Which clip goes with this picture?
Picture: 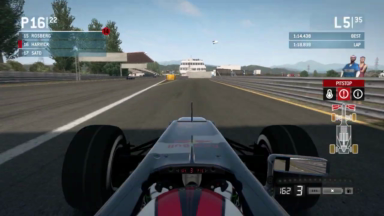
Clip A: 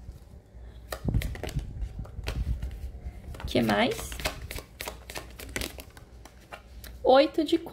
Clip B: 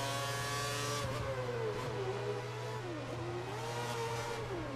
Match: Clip B